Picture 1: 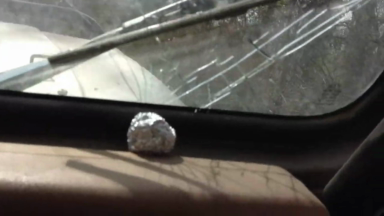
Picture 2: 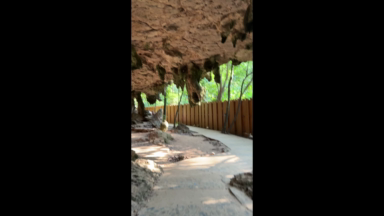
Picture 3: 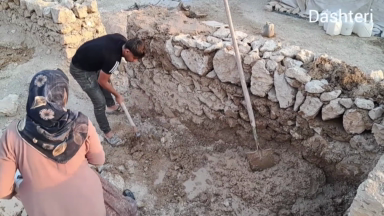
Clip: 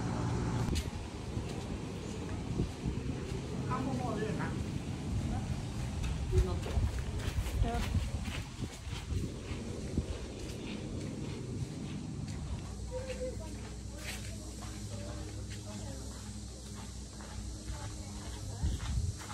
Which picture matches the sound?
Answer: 2